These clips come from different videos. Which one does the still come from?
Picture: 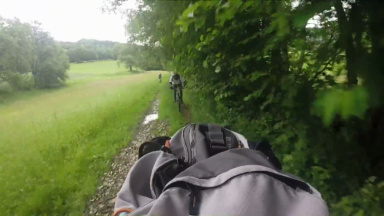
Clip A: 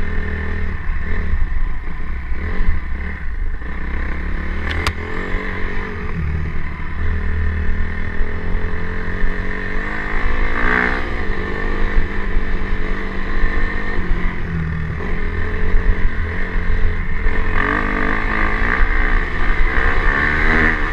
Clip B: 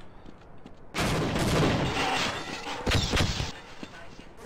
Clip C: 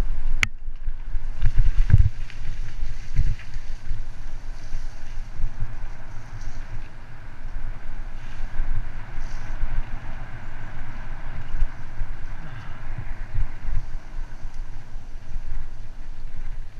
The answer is C